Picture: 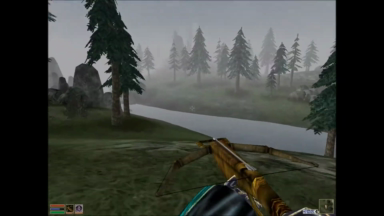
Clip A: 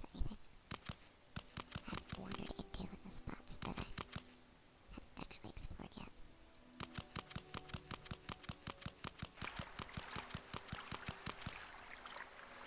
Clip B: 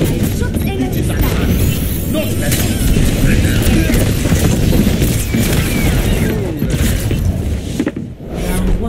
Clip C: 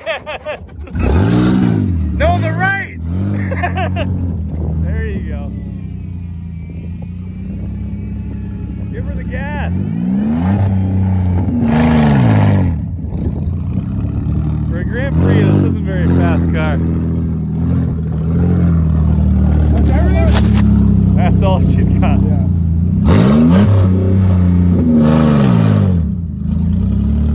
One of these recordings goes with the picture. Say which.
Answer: A